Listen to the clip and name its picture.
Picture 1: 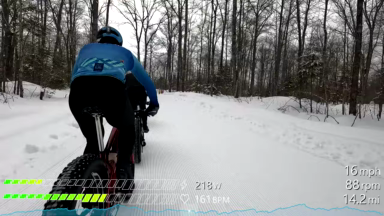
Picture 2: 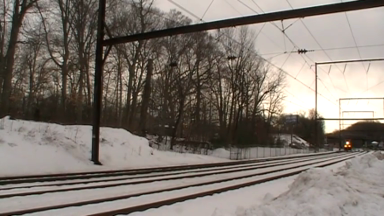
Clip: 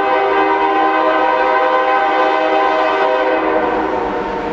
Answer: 2